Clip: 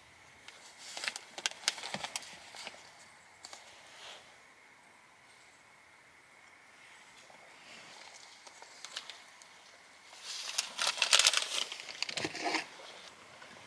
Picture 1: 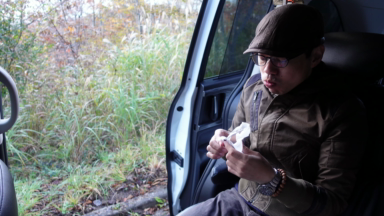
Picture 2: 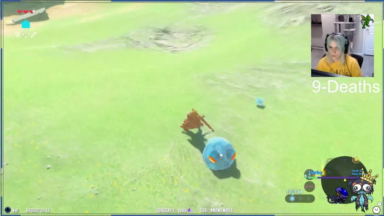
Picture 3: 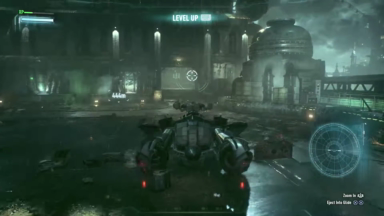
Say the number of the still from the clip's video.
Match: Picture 1